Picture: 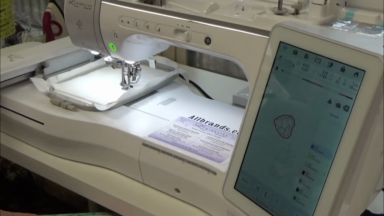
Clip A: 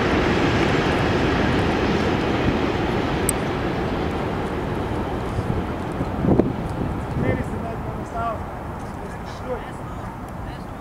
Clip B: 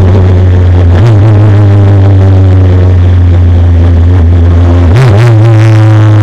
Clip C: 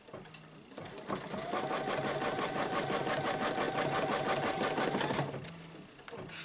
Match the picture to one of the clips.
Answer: C